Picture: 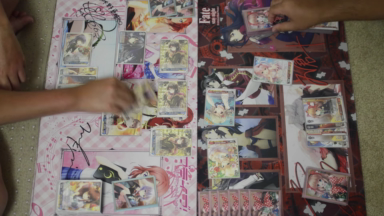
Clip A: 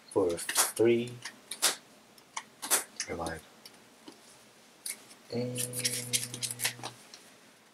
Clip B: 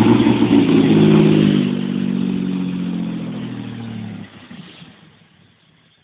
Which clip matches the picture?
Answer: A